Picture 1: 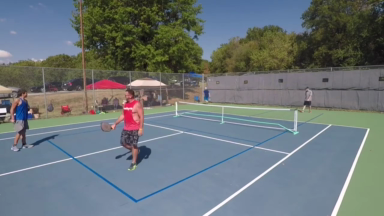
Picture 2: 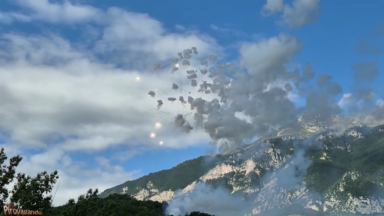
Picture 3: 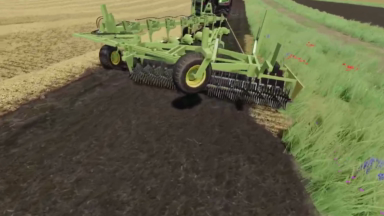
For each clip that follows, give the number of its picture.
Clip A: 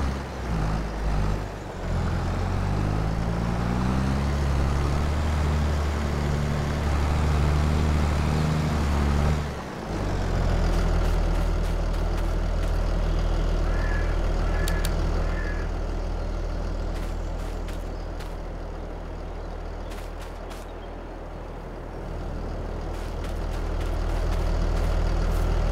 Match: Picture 3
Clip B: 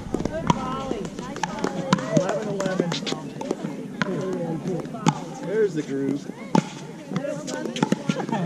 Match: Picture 1